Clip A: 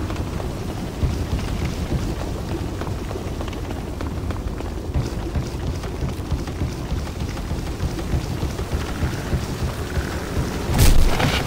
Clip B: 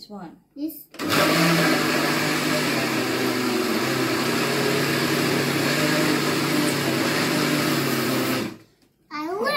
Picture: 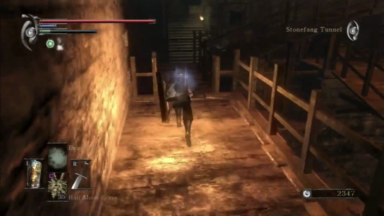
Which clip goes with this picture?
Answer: A